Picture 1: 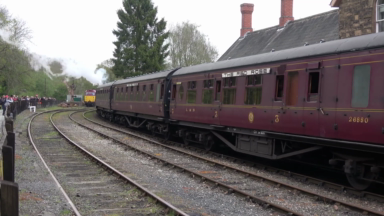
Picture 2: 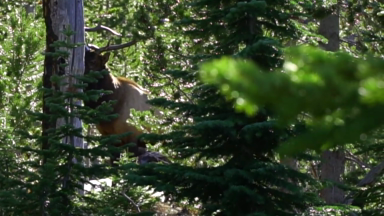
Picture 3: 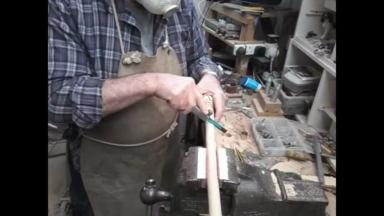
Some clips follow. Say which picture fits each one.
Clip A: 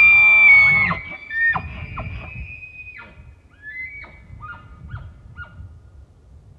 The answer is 2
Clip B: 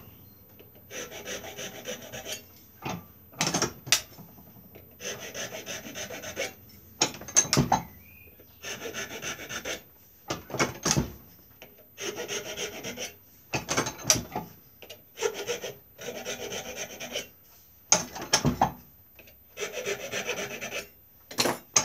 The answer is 3